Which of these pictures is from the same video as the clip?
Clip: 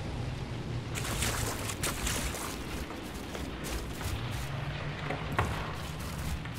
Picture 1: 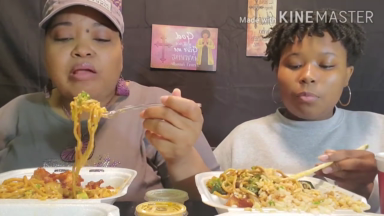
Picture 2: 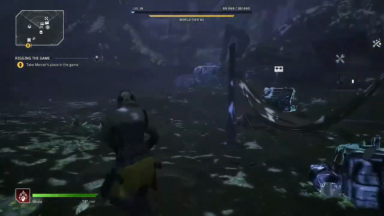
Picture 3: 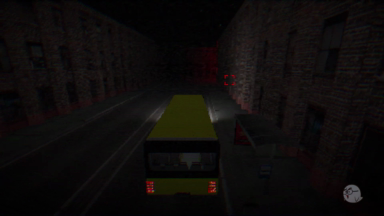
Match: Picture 2